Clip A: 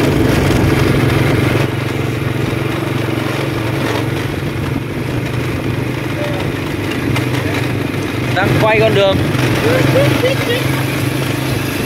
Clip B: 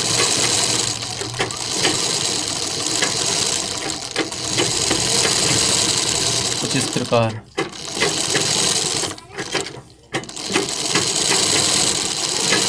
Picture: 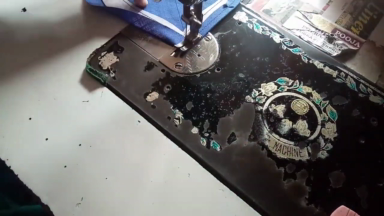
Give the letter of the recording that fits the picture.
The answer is B